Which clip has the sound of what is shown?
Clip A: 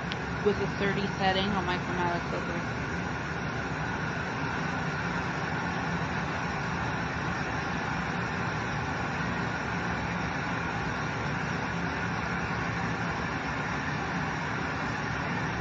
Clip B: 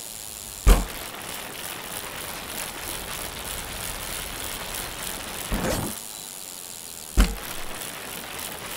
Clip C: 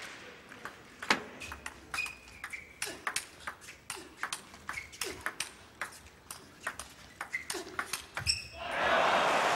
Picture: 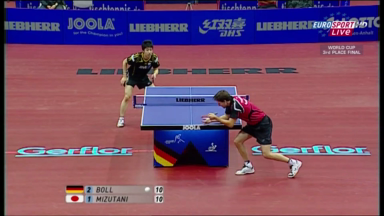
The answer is C